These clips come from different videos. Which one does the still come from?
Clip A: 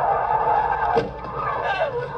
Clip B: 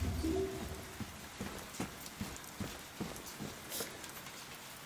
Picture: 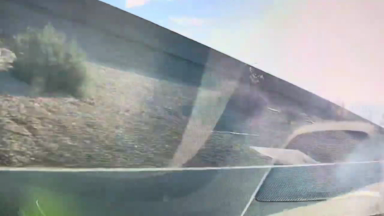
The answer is A